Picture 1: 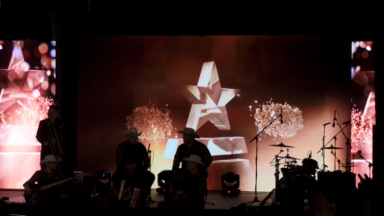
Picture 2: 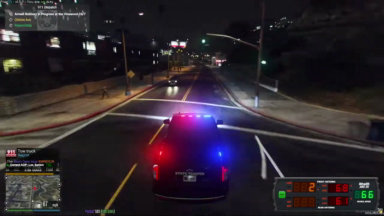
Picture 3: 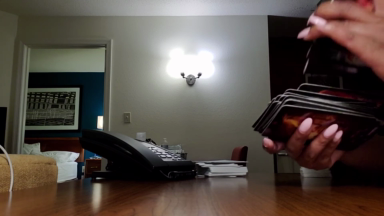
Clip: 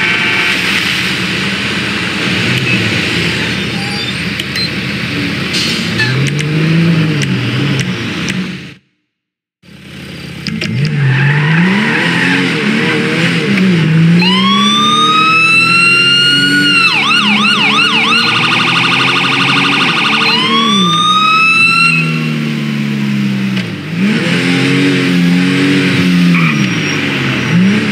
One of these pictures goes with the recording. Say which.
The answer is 2